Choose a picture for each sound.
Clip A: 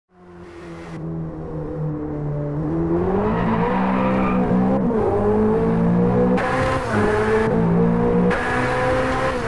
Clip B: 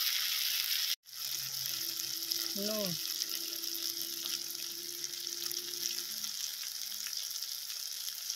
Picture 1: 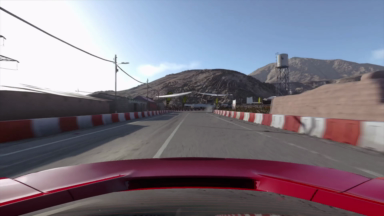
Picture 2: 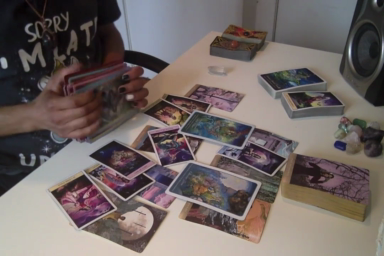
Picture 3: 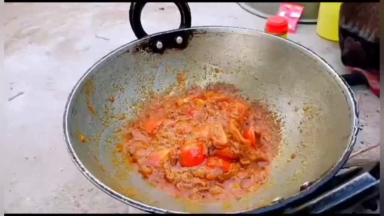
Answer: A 1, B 3